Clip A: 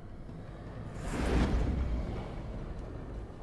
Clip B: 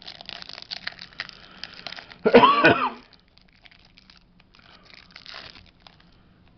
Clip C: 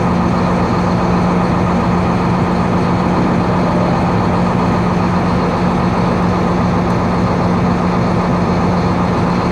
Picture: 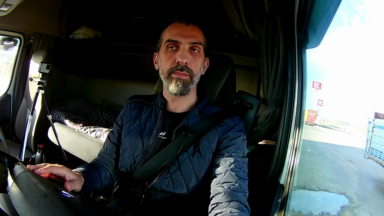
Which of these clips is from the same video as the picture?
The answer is C